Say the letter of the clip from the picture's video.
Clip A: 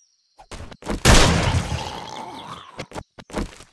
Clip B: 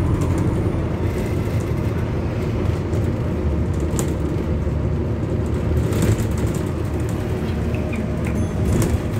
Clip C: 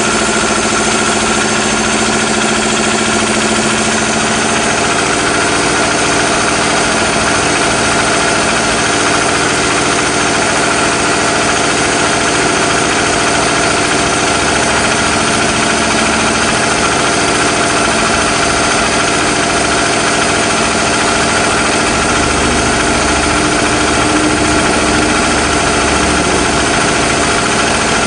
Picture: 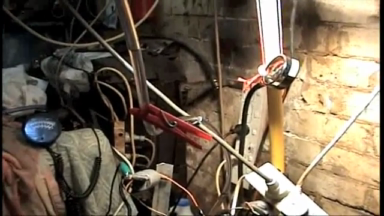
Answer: C